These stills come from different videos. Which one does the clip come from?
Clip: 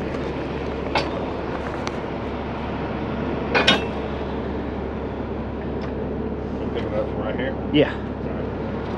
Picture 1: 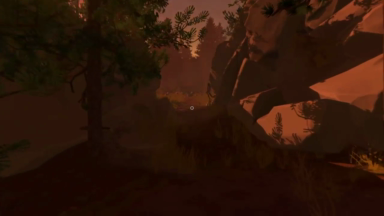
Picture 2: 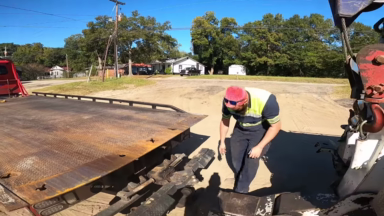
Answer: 2